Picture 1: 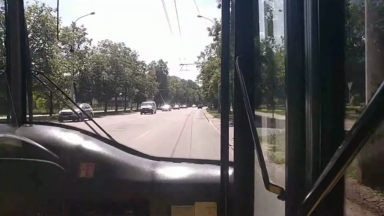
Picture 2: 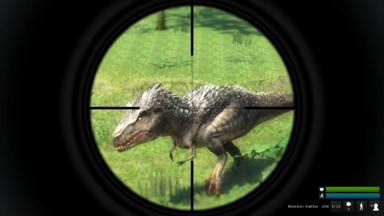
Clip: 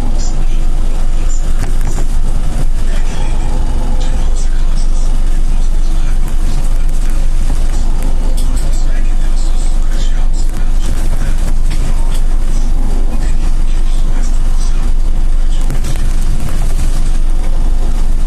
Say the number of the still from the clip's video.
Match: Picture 1